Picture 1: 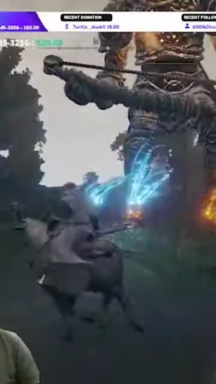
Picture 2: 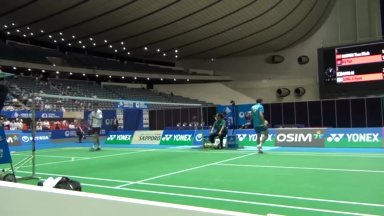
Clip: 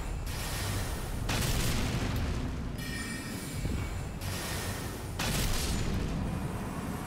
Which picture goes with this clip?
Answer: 1